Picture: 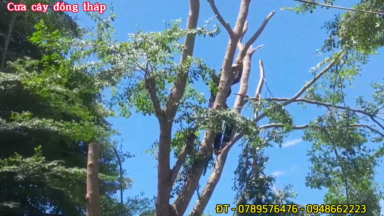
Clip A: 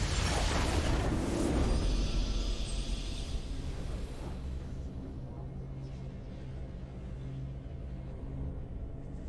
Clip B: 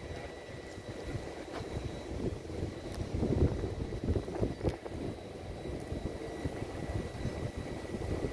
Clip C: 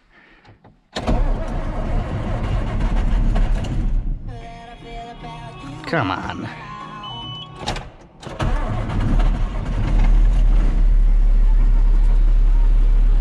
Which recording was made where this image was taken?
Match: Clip B